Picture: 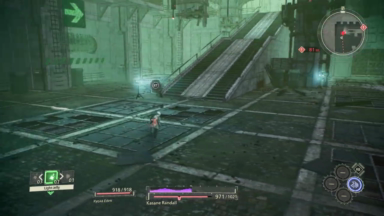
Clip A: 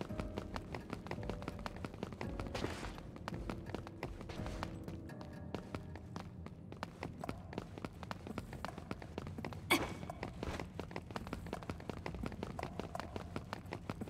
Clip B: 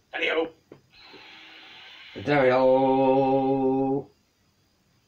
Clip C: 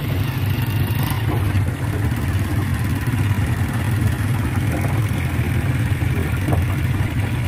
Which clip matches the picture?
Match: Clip A